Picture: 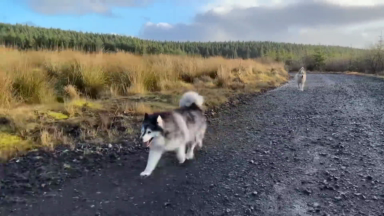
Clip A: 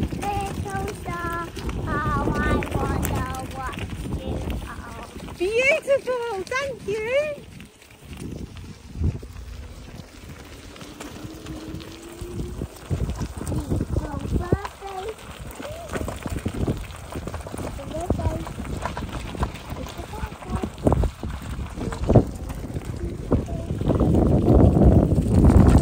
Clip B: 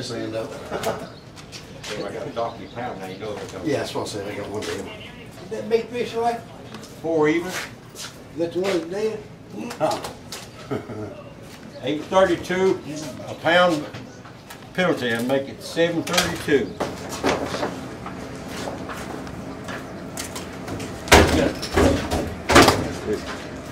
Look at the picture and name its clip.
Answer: A